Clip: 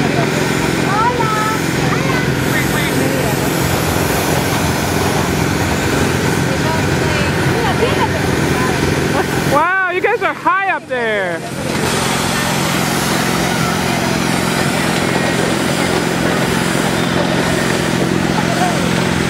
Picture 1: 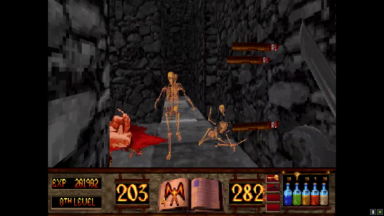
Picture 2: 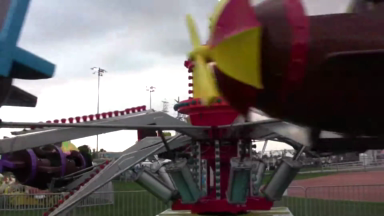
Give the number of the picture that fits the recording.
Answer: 2